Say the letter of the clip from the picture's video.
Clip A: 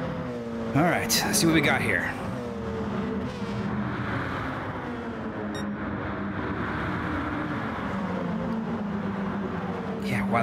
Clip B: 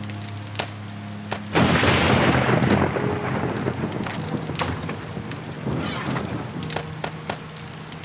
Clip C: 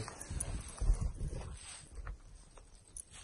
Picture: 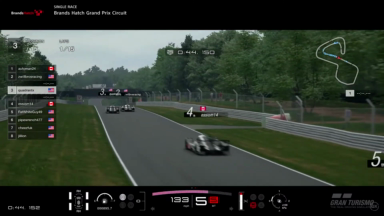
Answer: A